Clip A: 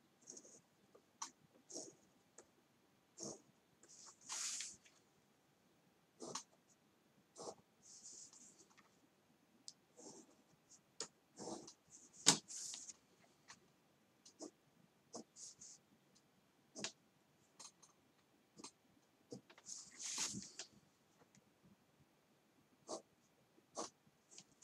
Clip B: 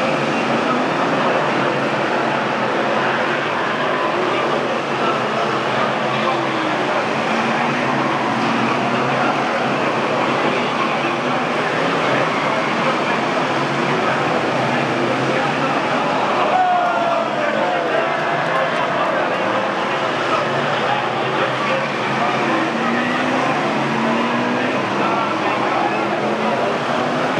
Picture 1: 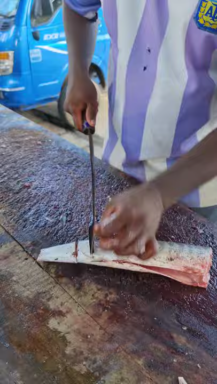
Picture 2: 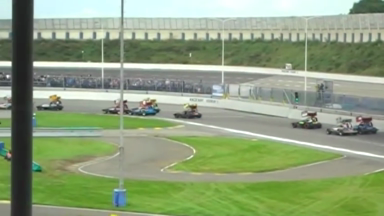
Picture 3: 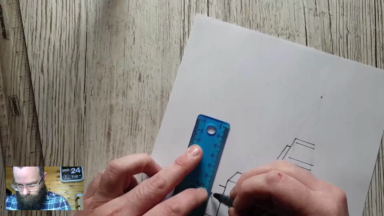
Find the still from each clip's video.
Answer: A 3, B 2